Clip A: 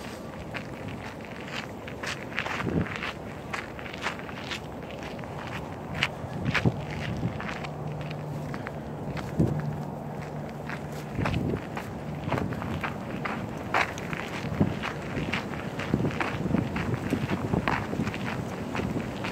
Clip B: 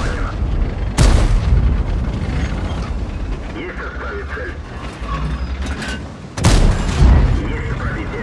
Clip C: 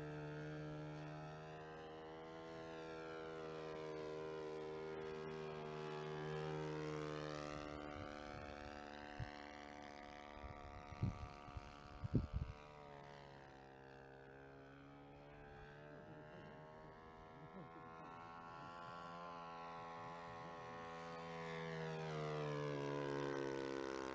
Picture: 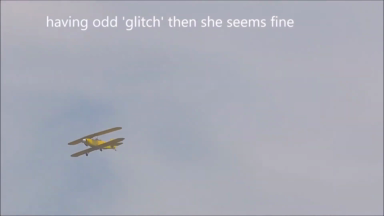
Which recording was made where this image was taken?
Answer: C